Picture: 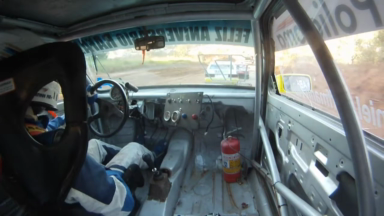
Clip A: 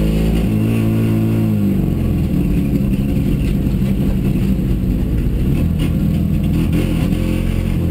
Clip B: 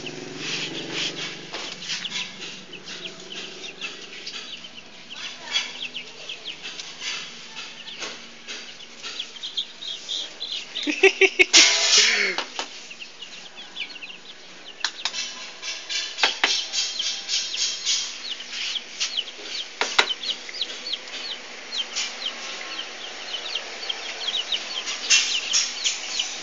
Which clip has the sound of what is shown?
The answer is A